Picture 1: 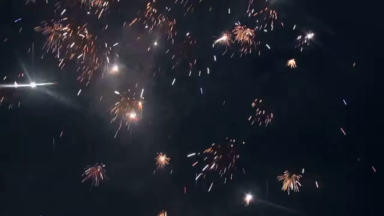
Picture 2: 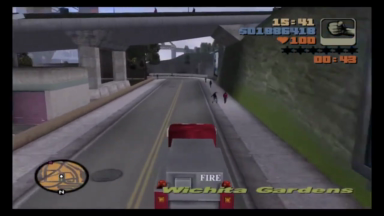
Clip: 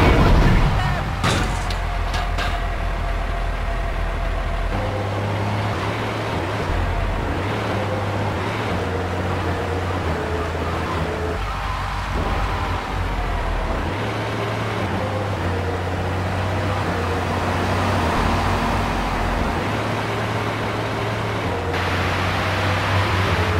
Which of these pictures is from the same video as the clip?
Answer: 2